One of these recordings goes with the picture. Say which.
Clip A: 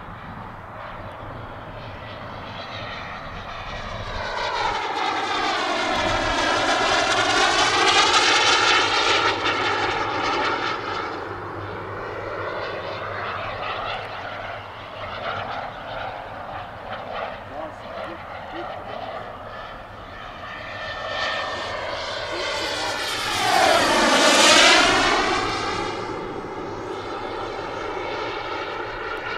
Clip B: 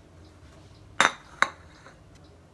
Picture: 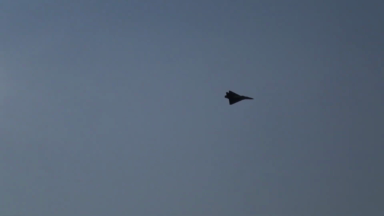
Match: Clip A